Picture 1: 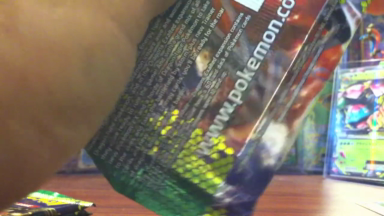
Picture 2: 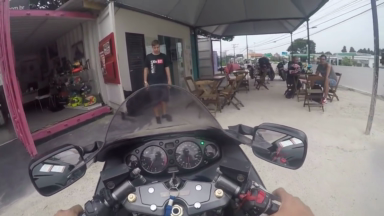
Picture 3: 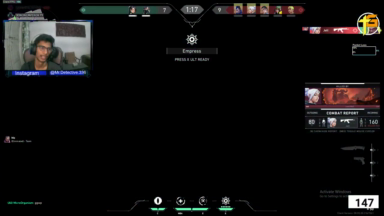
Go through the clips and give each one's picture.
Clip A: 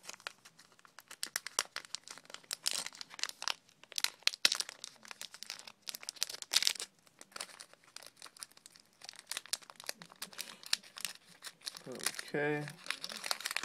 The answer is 1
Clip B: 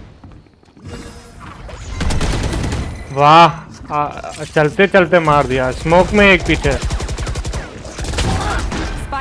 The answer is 3